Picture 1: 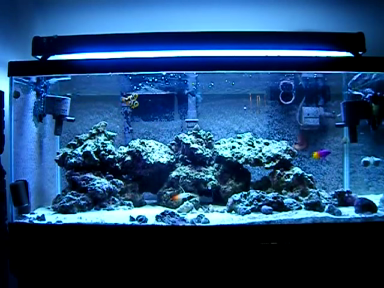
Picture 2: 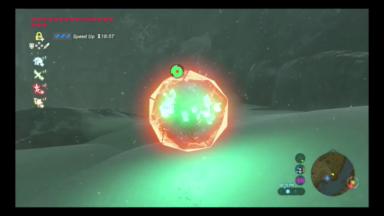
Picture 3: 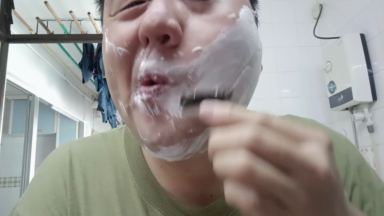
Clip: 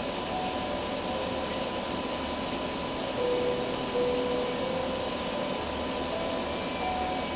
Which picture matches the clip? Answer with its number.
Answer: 1